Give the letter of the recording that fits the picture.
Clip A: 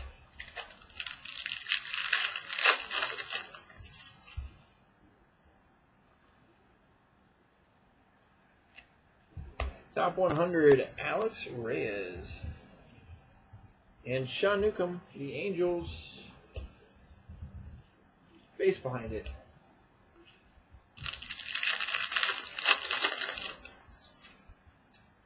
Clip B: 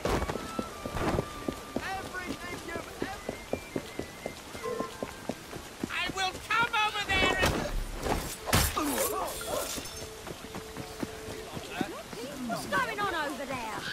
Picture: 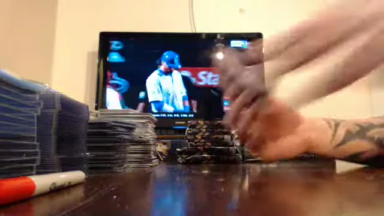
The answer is A